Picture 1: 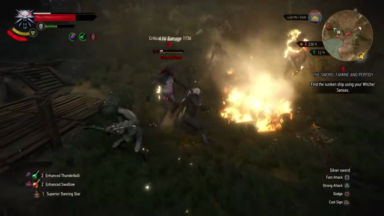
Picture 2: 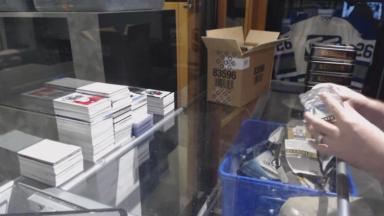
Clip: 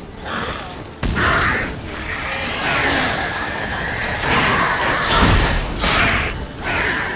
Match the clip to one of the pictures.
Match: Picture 1